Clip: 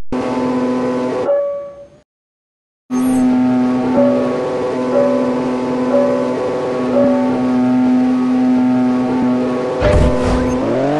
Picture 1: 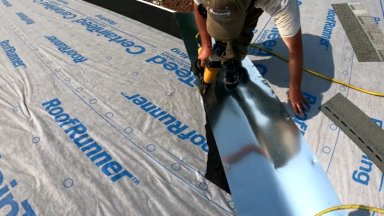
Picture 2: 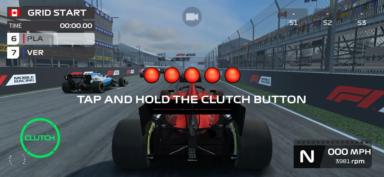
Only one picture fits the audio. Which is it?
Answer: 2